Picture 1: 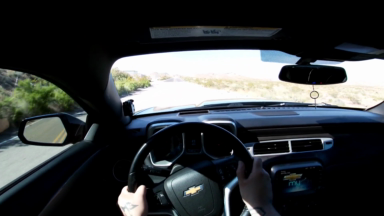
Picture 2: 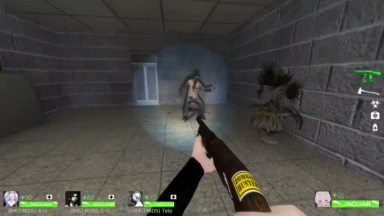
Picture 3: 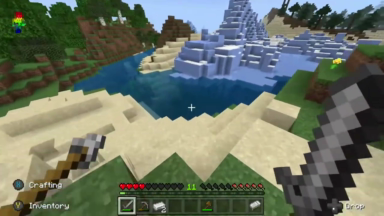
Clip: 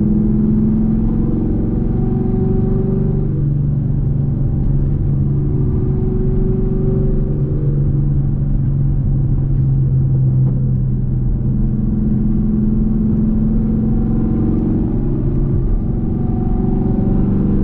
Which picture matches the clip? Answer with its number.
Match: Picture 1